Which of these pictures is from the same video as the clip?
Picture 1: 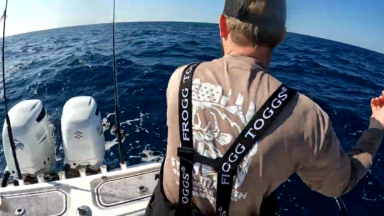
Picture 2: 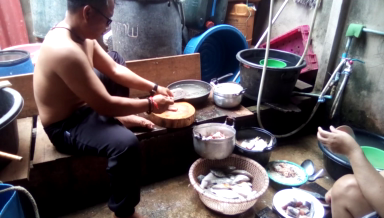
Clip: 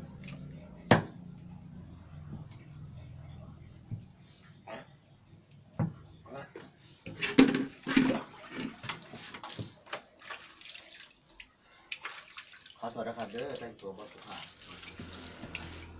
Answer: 2